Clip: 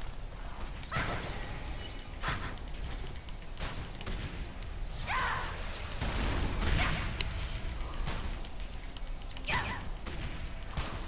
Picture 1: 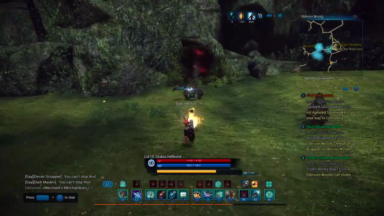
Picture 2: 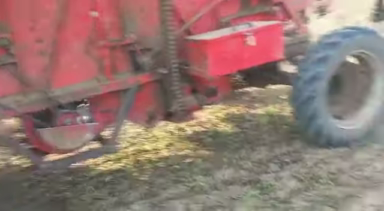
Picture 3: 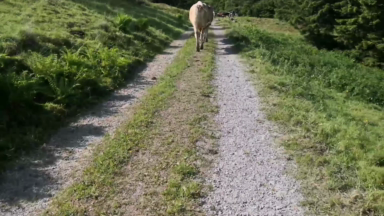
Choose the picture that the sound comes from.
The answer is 1